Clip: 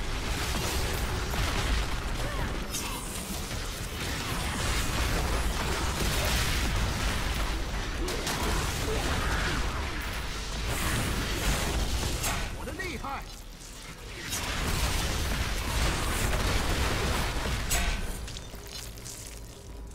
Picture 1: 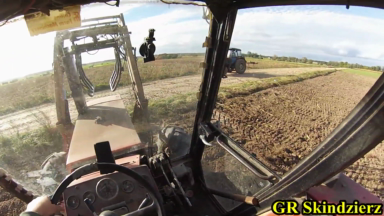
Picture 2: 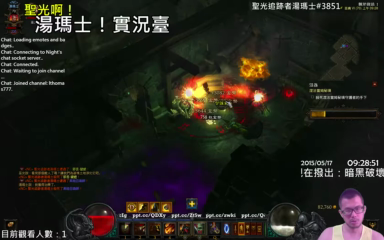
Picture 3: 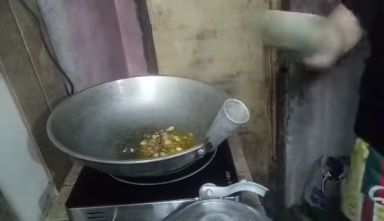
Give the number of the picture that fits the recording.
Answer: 2